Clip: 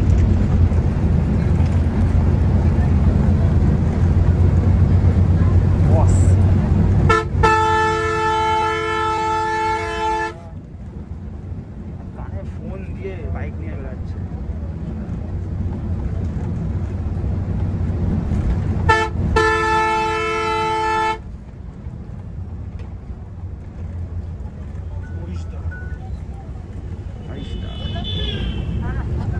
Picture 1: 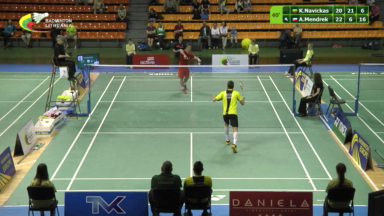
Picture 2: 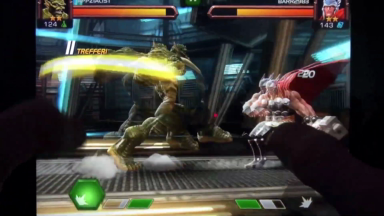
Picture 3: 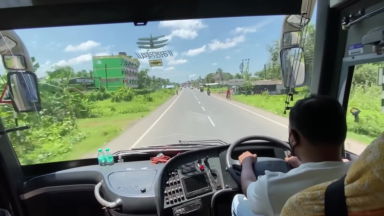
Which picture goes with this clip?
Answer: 3